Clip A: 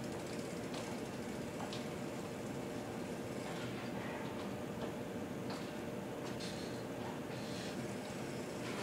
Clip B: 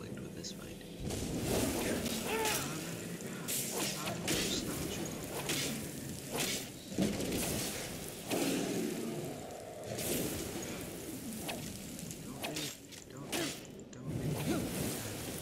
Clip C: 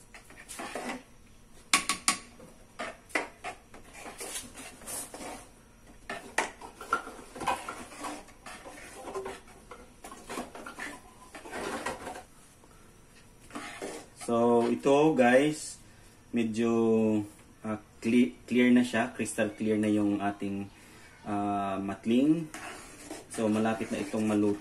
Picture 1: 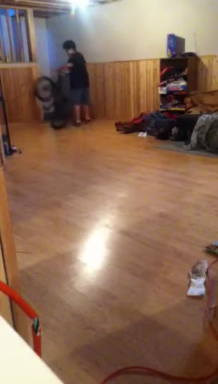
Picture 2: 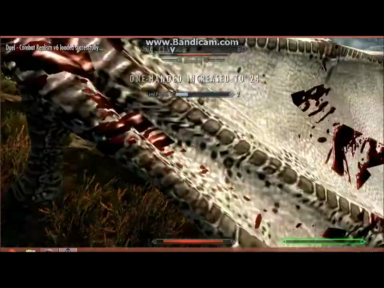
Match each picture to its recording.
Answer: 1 A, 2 B